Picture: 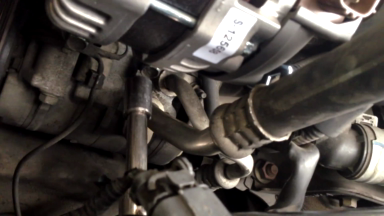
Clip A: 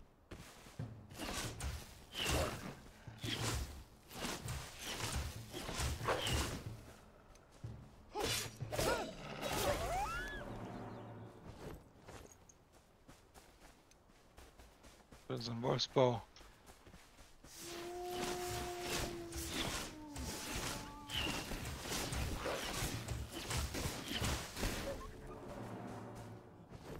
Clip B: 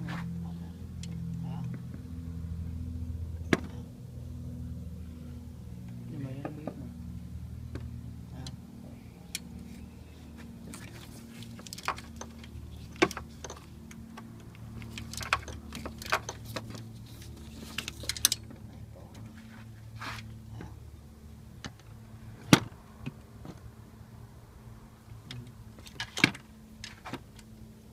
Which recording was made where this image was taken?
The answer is B